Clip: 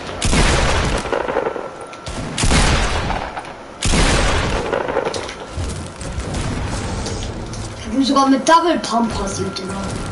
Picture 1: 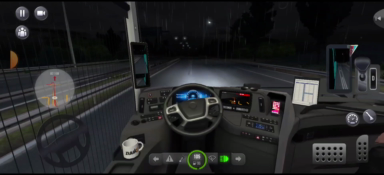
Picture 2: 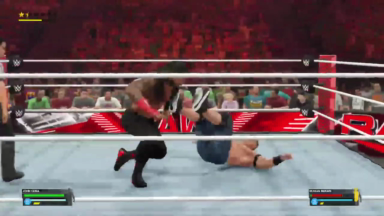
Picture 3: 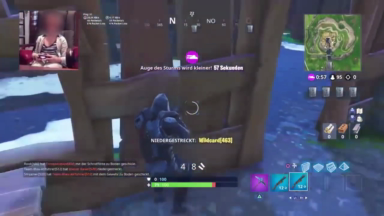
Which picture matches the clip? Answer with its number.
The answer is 3